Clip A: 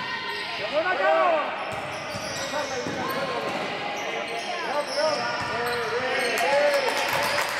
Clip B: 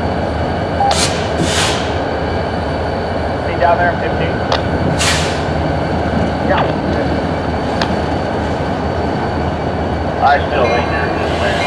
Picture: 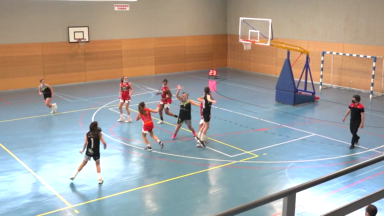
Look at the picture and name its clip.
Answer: A